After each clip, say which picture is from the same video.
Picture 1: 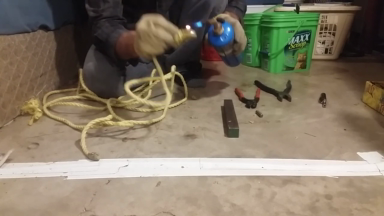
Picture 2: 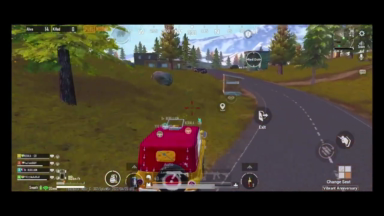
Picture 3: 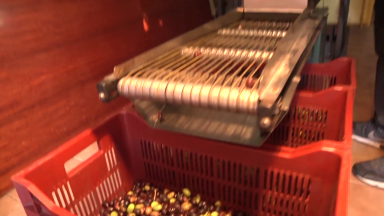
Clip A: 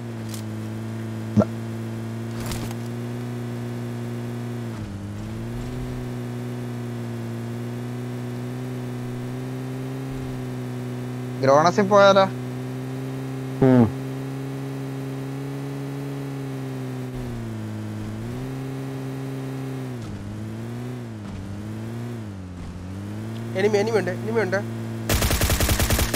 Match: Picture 2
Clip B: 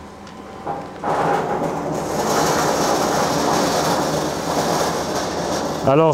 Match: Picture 3